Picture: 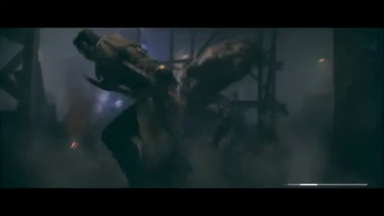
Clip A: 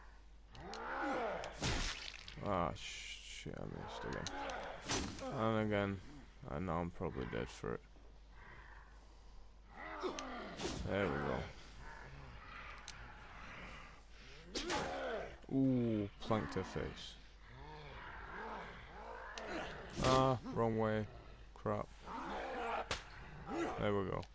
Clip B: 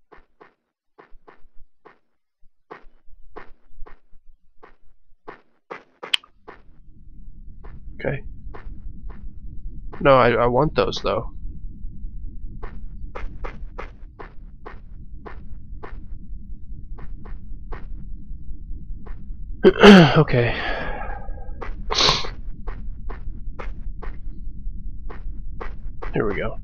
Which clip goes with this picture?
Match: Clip A